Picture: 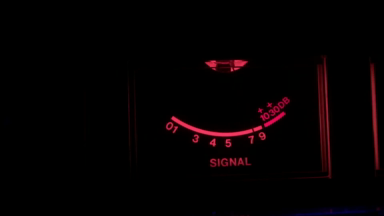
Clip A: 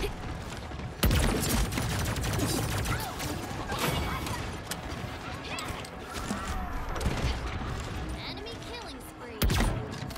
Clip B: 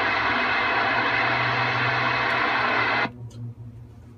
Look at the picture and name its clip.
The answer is B